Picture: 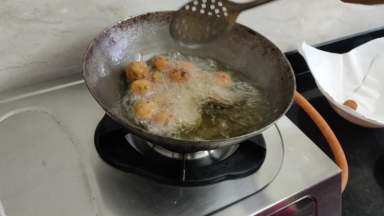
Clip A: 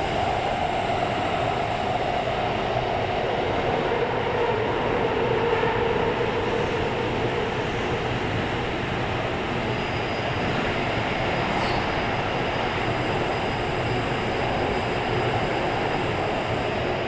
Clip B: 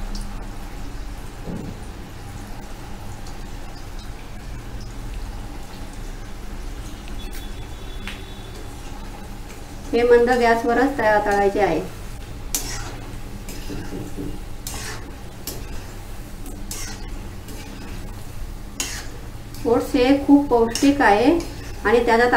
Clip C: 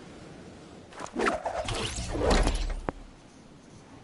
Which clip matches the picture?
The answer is B